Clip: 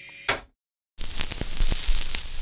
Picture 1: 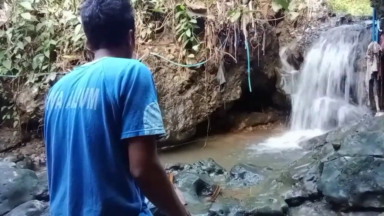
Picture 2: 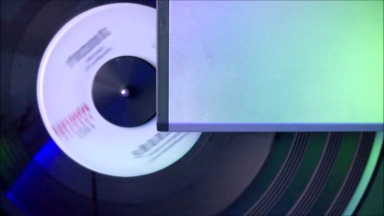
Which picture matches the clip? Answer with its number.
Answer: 2